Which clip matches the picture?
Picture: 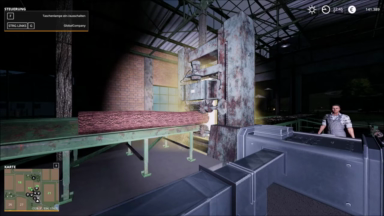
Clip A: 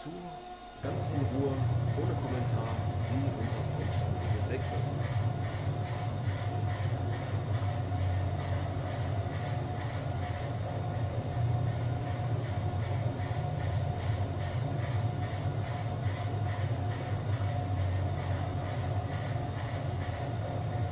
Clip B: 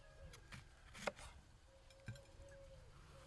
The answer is A